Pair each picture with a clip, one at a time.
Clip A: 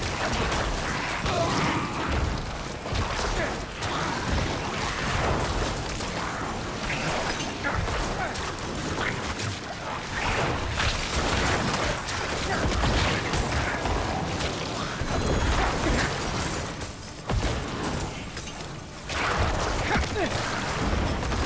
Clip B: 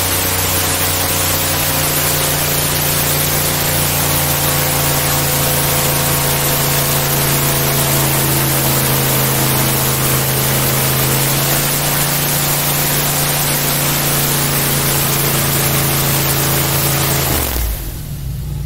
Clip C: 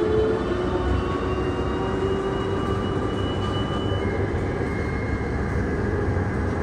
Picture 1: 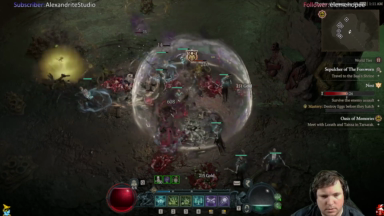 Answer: A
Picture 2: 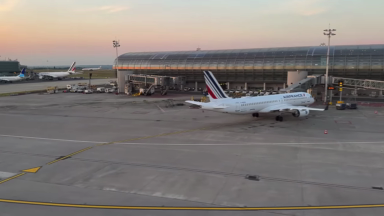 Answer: C